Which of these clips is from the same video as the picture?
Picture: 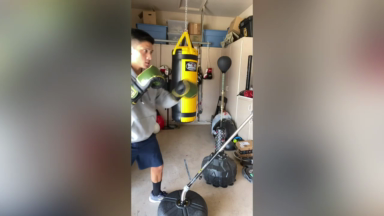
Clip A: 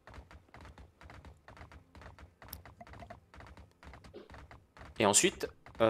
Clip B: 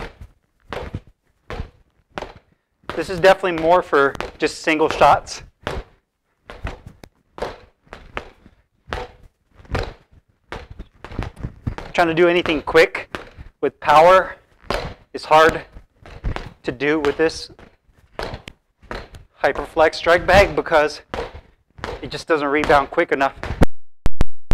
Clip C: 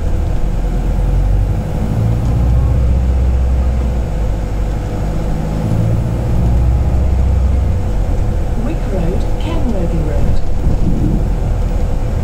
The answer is B